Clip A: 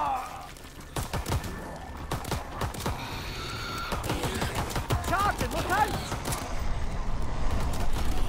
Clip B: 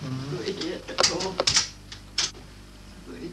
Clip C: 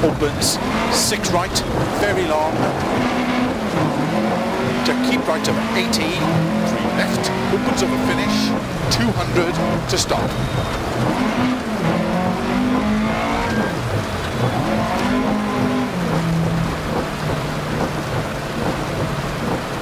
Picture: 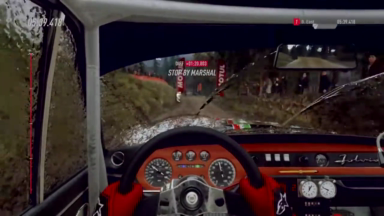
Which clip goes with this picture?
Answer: C